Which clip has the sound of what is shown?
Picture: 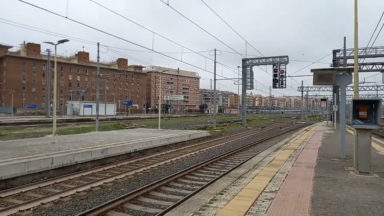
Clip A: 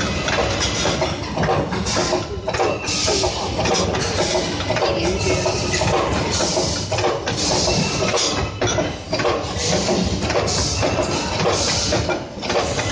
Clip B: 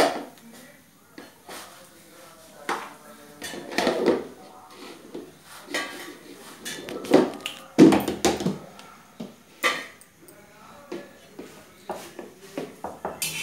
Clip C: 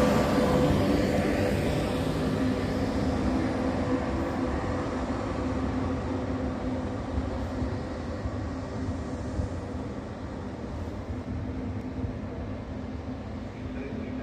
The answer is C